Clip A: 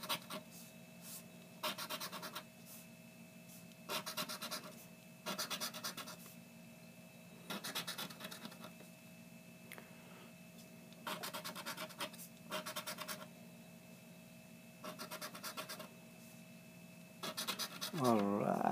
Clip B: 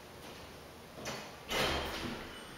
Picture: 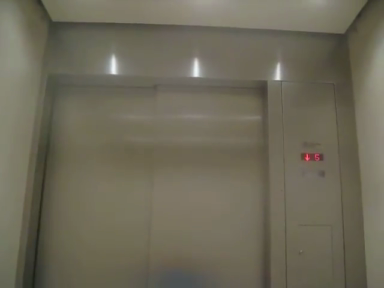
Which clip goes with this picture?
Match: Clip B